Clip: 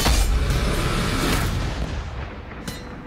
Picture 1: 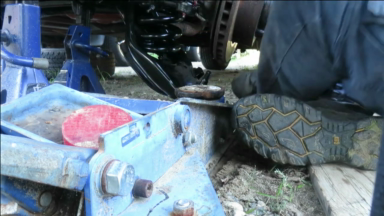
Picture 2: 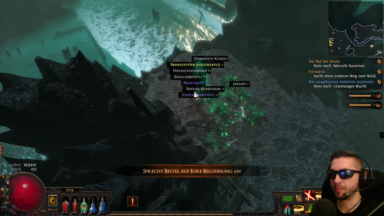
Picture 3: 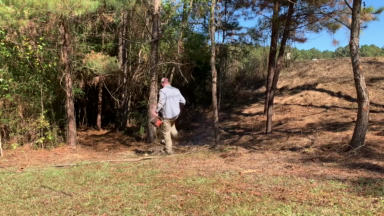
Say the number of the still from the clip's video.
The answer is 2